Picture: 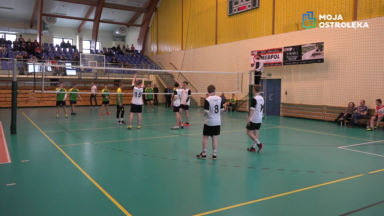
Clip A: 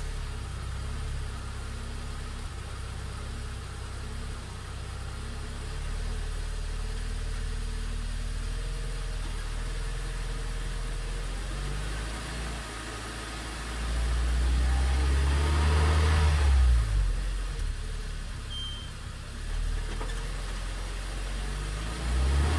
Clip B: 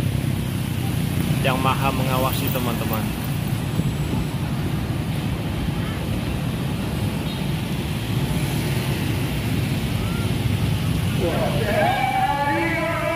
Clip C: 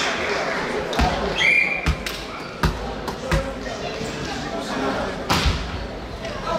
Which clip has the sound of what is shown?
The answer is C